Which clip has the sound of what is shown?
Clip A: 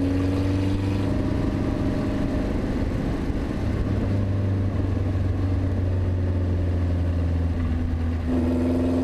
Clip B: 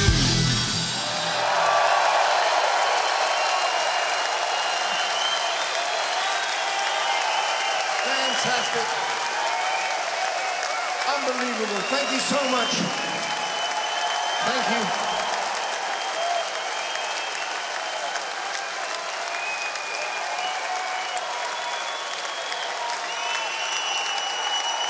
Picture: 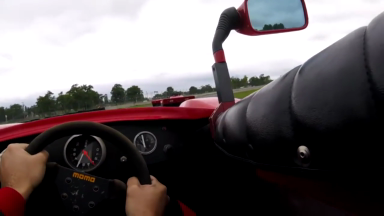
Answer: A